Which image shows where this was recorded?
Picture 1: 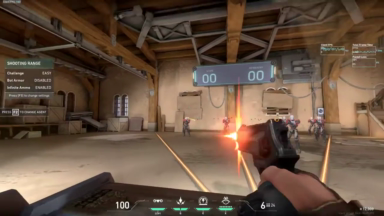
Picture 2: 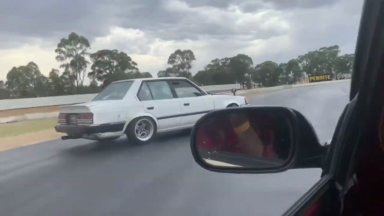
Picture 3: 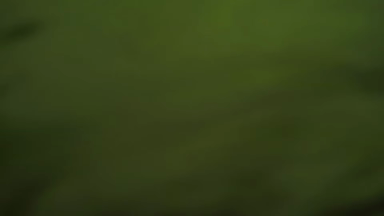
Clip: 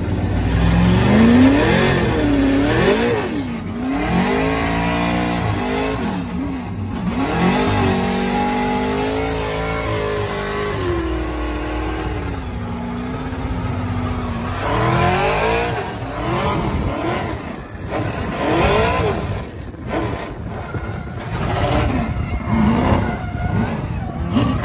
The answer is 2